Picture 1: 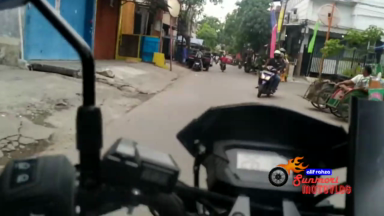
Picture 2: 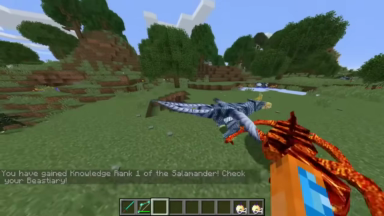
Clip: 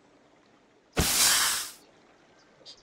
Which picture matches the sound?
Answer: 2